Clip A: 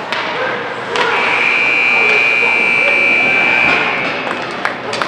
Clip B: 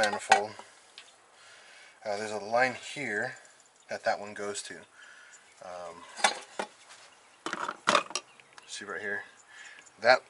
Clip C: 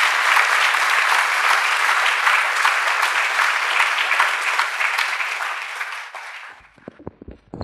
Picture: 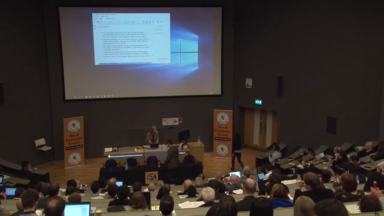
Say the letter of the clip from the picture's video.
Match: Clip C